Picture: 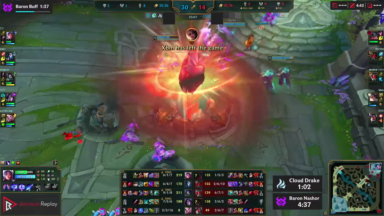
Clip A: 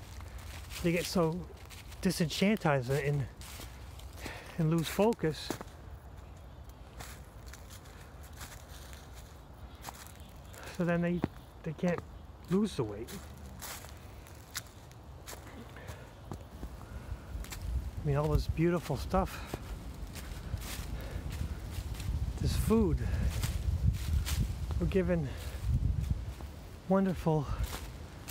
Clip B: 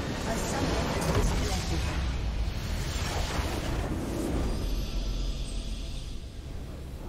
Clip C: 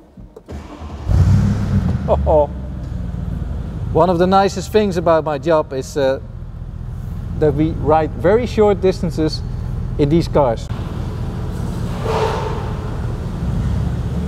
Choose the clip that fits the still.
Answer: B